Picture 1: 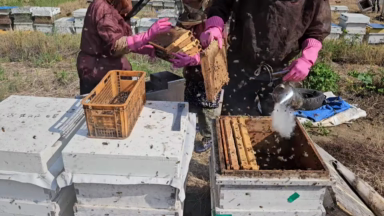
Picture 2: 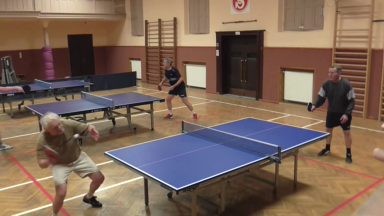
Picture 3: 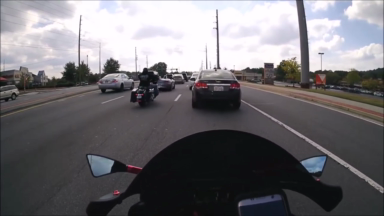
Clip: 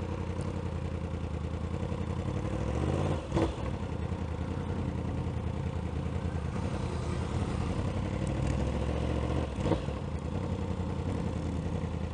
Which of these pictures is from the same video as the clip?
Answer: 3